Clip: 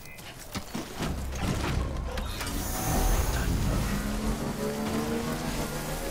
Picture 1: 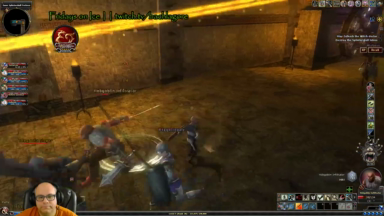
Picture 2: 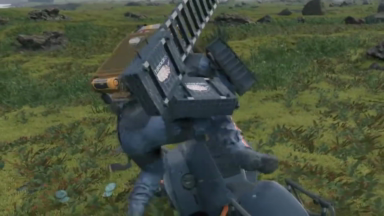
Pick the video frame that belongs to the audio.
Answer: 2